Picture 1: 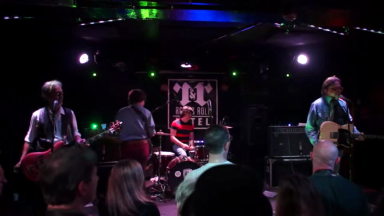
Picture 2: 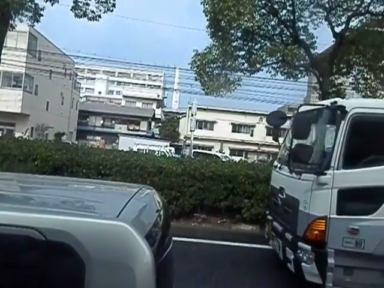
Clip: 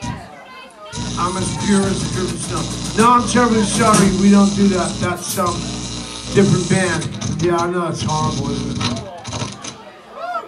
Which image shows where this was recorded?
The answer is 1